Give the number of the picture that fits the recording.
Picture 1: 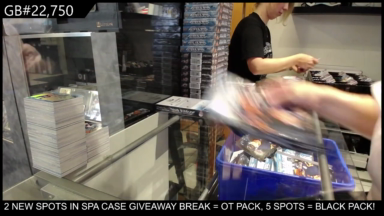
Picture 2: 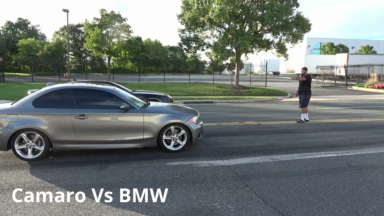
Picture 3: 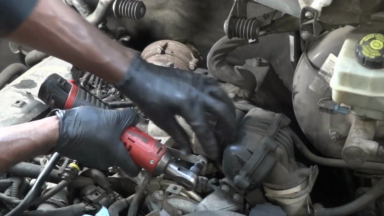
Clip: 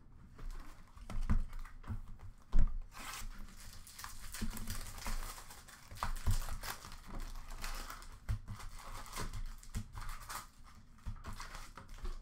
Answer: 1